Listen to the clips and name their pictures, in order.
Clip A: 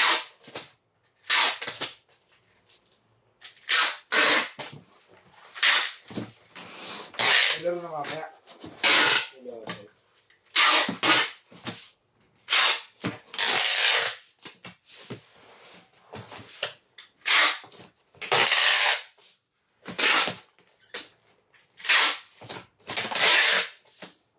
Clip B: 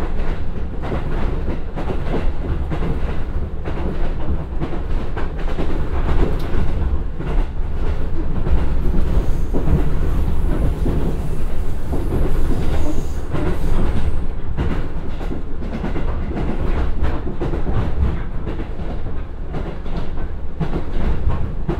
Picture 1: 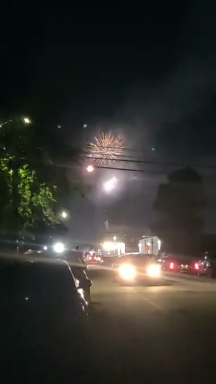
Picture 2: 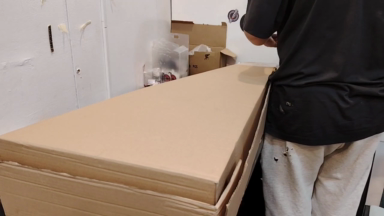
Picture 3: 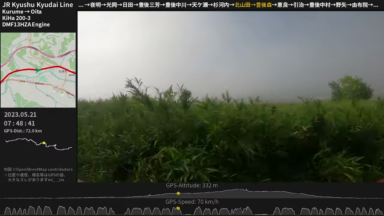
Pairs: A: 2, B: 3